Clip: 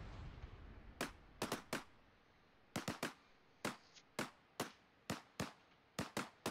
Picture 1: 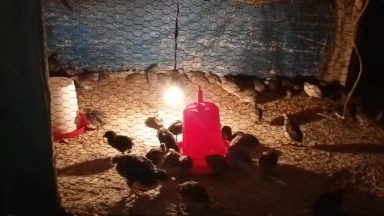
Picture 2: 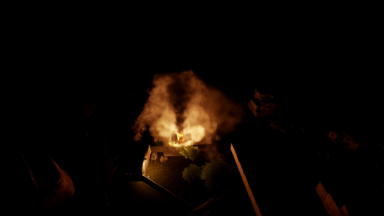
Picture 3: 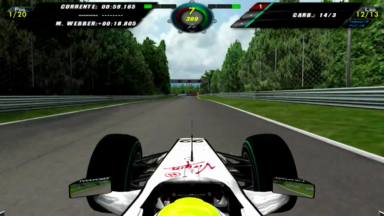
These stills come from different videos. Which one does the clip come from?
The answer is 2